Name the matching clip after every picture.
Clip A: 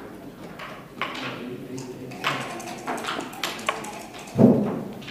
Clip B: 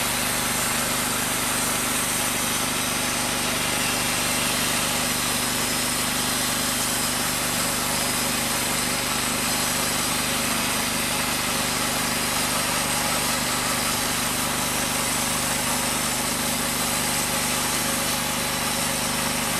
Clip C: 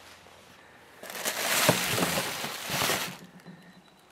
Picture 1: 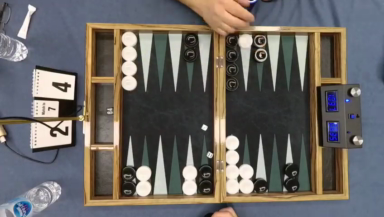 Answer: A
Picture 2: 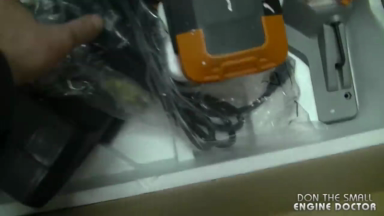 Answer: C